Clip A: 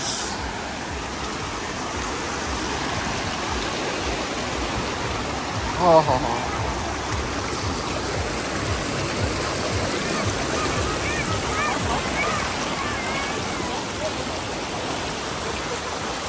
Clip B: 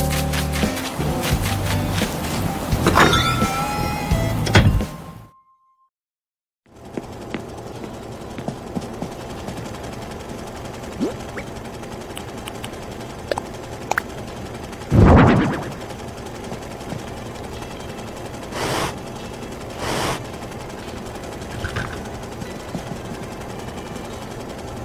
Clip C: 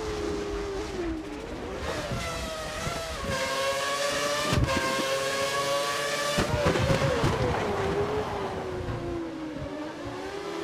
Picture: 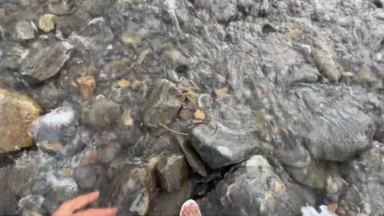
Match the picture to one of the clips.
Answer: A